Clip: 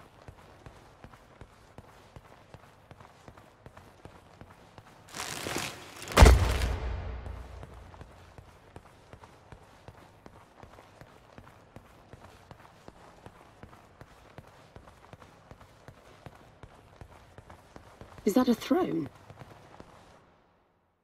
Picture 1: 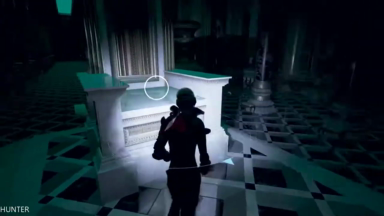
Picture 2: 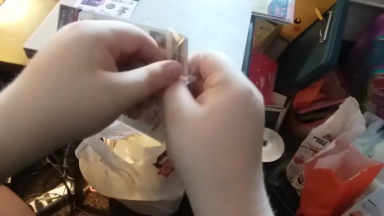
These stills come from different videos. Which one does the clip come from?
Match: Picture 1